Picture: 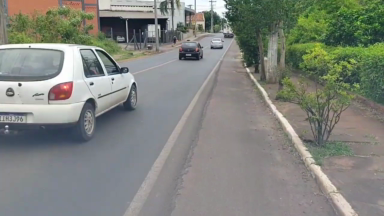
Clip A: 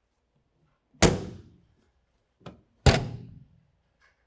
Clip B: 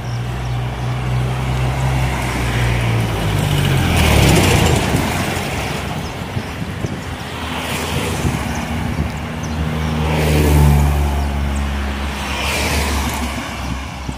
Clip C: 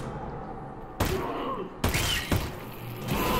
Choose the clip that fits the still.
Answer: B